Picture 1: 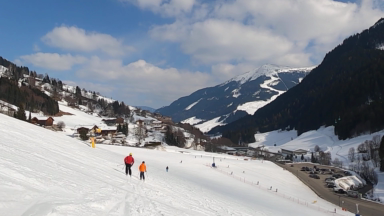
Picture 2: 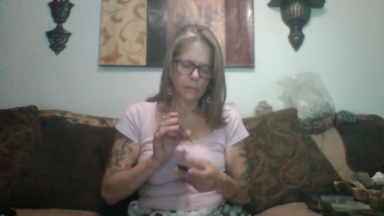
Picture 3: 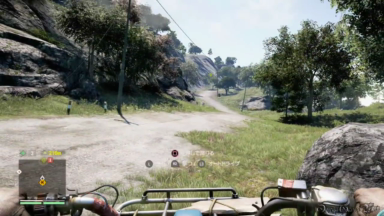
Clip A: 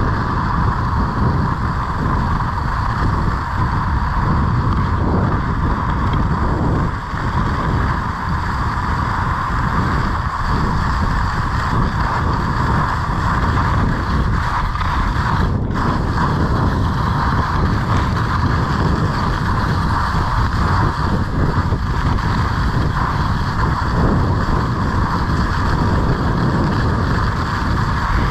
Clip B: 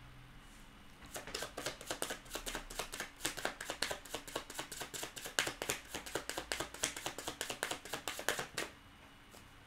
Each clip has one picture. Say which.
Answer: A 1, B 2